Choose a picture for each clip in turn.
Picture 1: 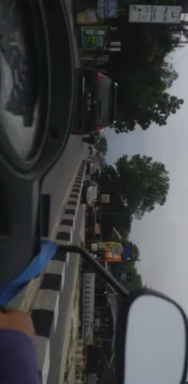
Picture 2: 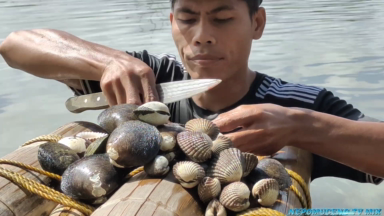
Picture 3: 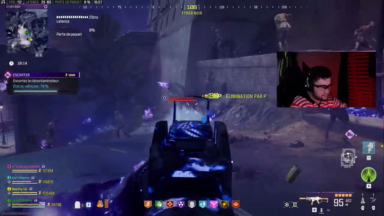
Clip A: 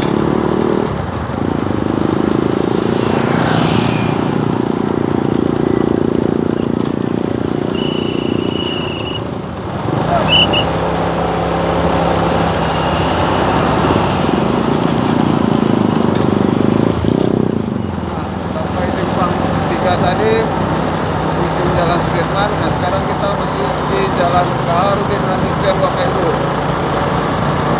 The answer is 1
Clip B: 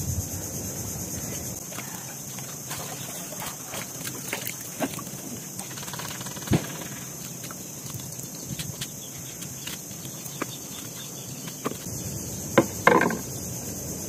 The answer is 2